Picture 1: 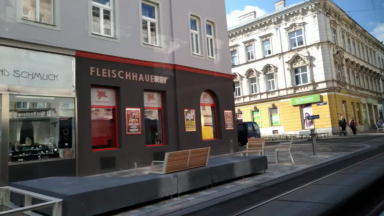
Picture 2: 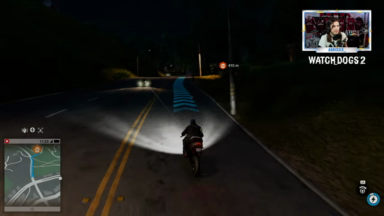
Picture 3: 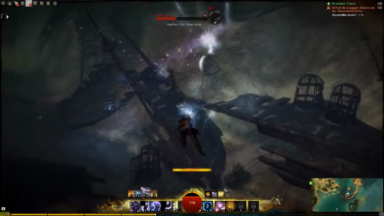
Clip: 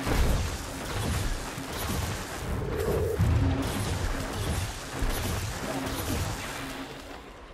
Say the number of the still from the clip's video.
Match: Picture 3